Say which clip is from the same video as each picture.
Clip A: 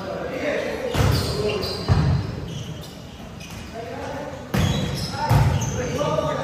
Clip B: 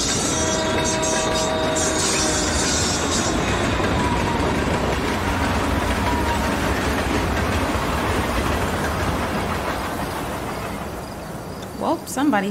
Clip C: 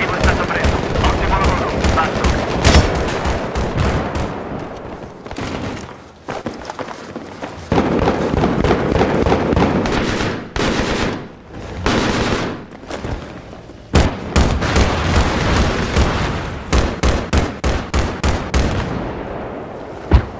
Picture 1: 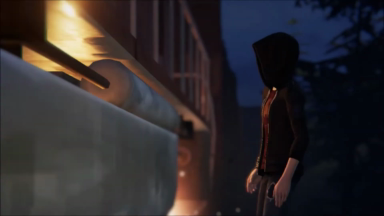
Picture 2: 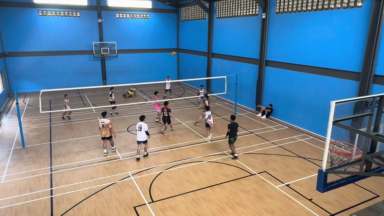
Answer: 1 B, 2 A